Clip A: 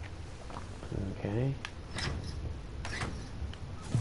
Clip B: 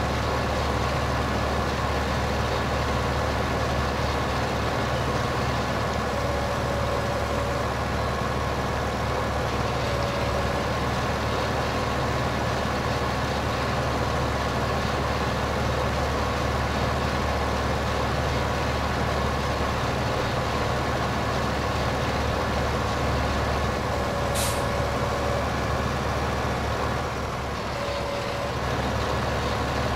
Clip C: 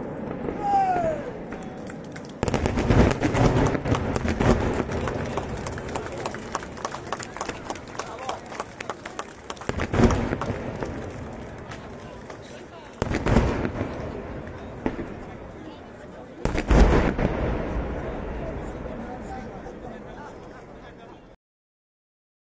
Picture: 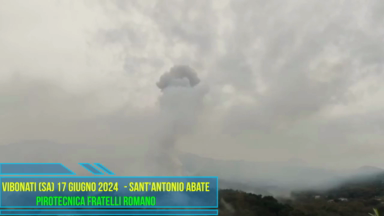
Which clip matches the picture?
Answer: C